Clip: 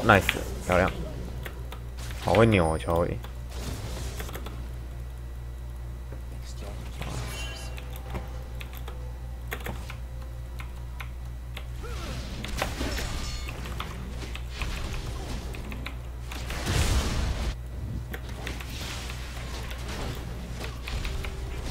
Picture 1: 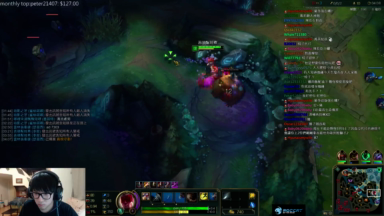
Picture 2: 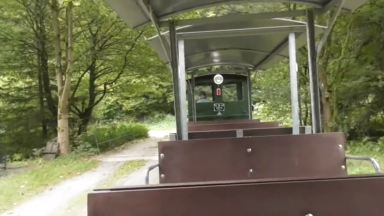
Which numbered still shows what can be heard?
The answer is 1